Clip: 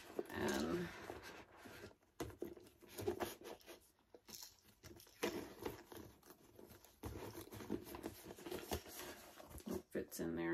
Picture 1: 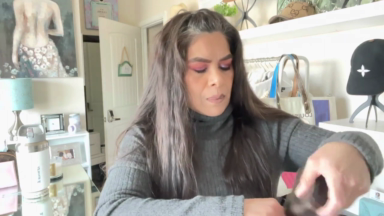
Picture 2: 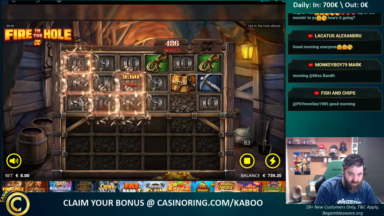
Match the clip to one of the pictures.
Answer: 1